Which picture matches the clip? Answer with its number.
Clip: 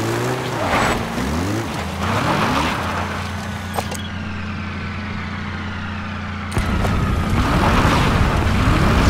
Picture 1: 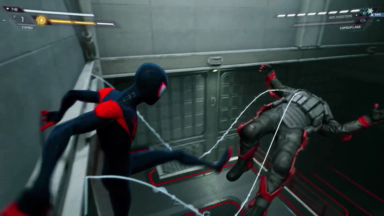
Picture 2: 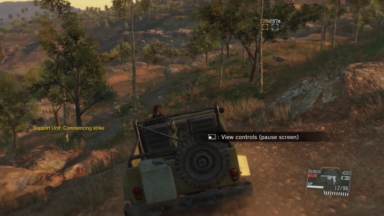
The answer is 2